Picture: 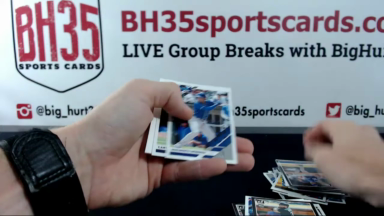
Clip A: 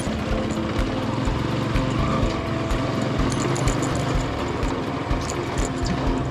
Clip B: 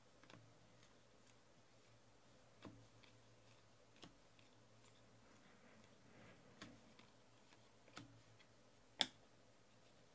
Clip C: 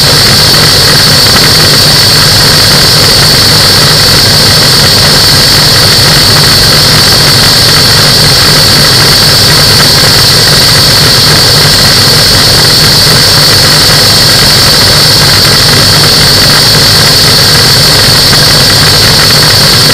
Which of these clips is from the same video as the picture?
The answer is B